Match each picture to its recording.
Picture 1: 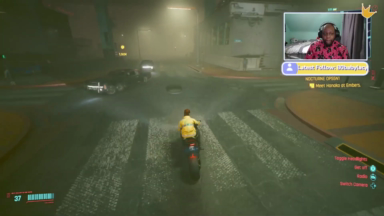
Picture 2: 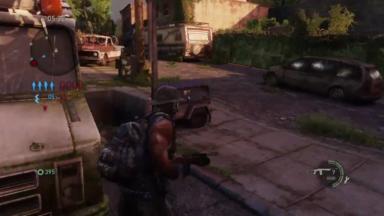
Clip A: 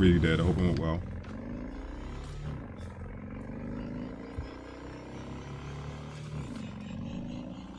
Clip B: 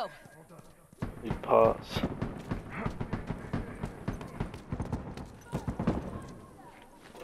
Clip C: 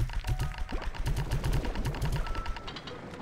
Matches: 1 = A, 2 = B